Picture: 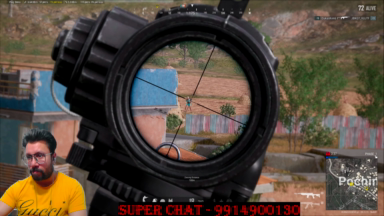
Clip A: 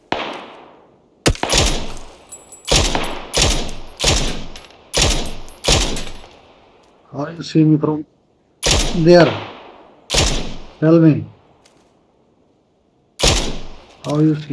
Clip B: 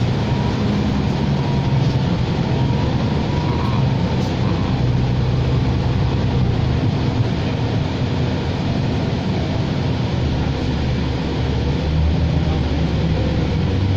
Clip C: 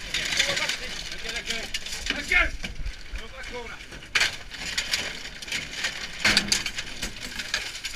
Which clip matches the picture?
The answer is A